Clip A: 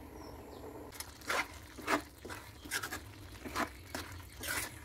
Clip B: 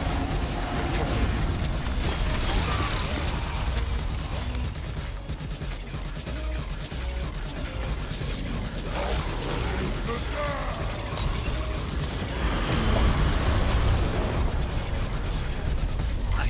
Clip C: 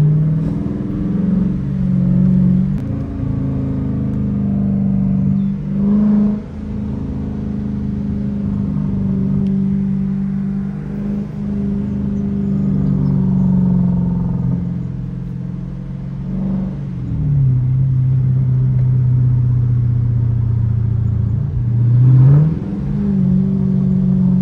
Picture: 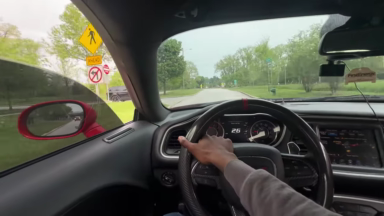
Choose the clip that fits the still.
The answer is C